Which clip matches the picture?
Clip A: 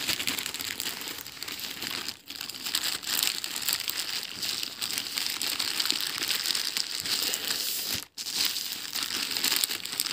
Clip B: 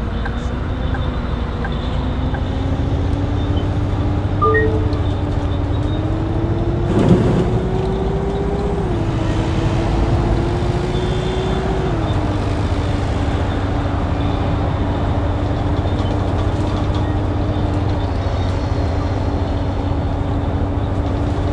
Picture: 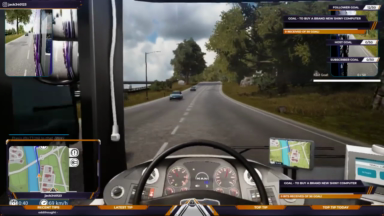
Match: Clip B